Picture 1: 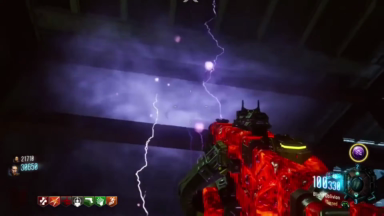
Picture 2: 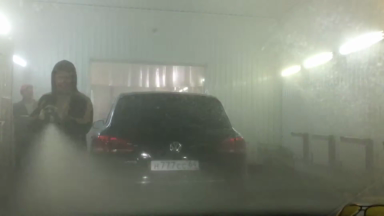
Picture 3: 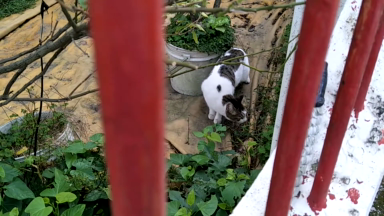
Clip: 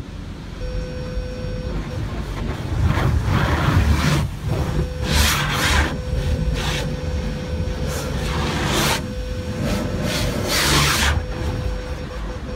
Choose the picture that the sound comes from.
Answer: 2